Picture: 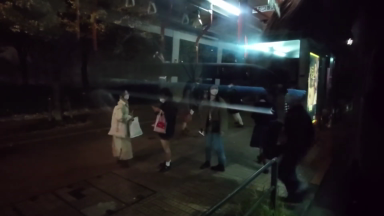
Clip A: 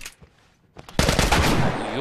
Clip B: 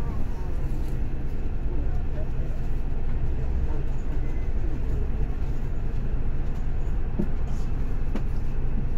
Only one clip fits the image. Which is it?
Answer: B